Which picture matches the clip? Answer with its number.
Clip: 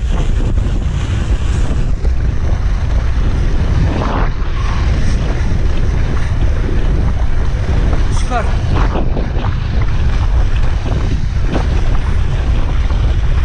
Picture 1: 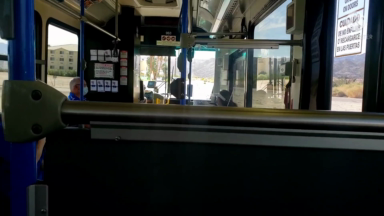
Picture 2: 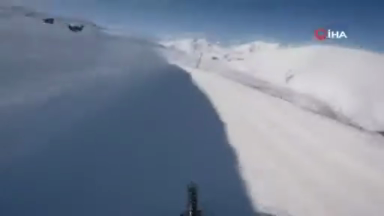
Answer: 2